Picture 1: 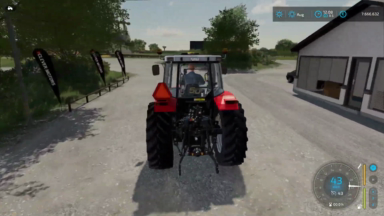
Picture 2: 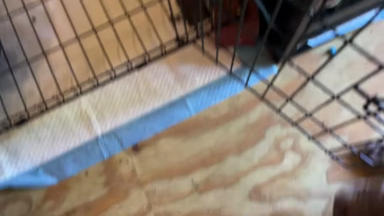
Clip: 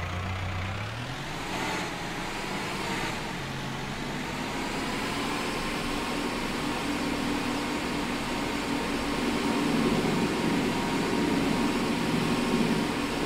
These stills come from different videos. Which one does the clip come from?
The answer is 1